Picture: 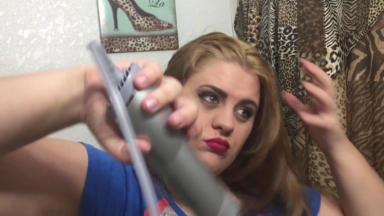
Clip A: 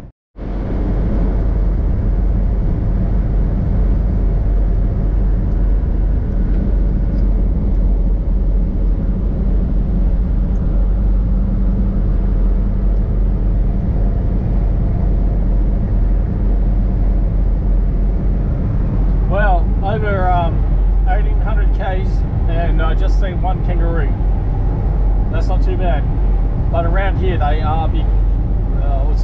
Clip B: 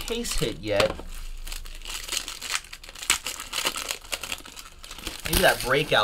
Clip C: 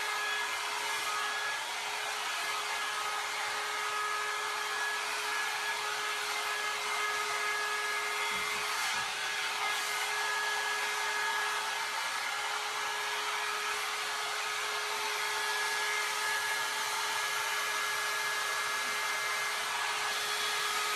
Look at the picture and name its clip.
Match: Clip C